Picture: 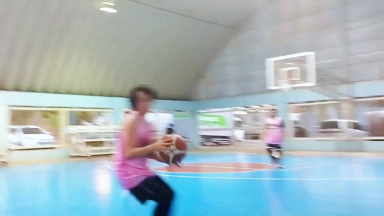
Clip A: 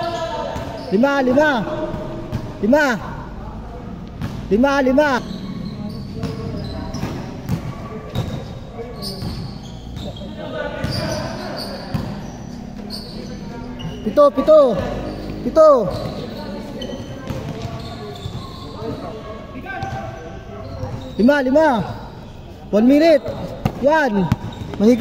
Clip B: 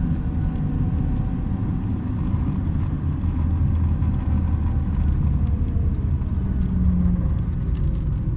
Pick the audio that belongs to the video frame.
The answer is A